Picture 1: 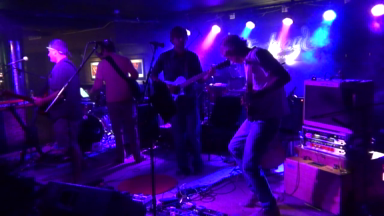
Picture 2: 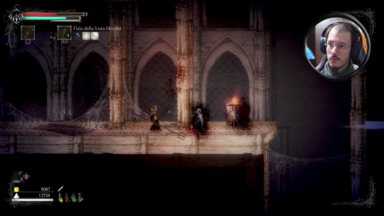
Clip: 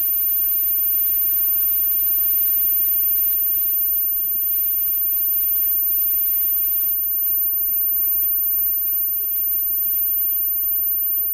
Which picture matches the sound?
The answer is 1